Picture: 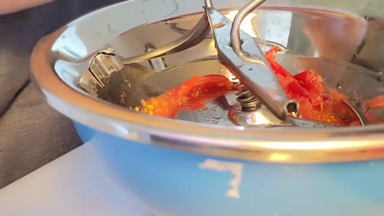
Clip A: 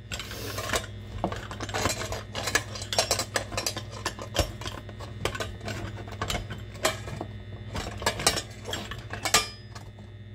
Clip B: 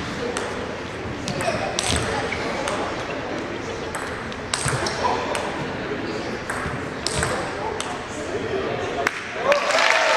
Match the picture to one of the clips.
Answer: A